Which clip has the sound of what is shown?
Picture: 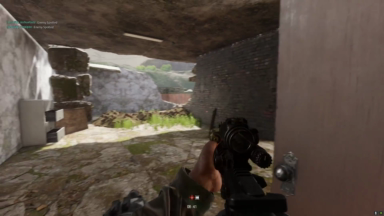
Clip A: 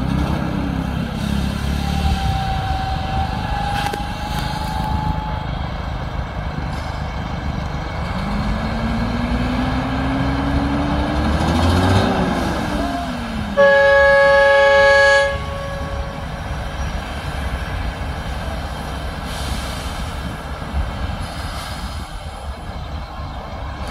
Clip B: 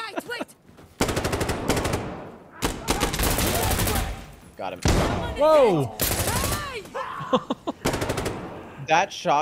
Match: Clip B